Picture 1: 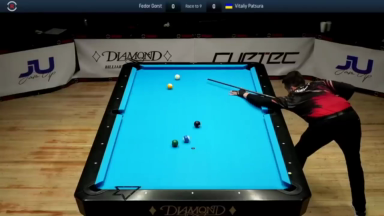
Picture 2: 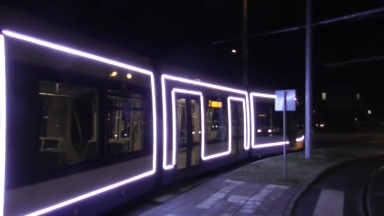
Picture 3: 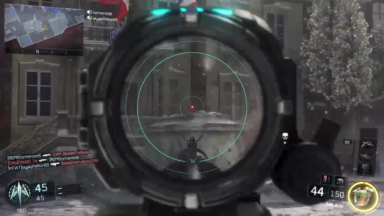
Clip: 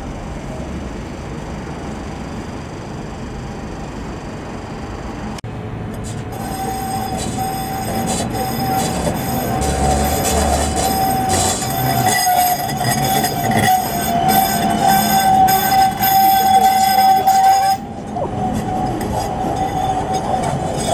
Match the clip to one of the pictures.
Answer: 2